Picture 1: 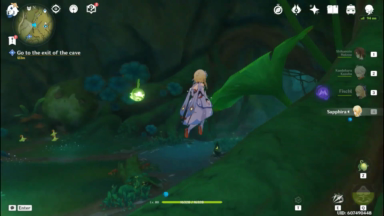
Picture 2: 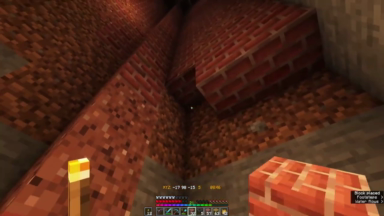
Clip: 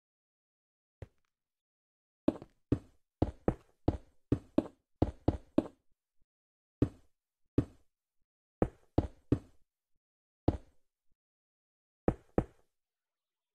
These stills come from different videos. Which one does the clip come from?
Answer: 2